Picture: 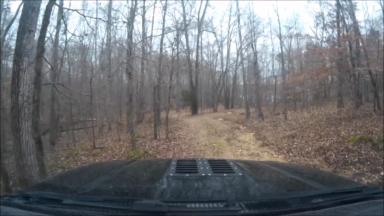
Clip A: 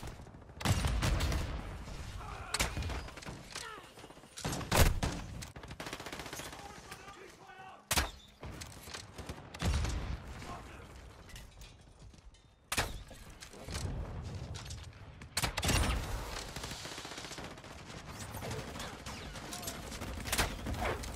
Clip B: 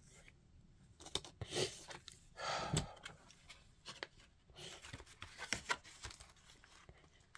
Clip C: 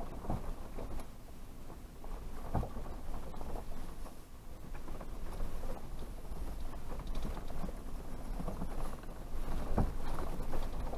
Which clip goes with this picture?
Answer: C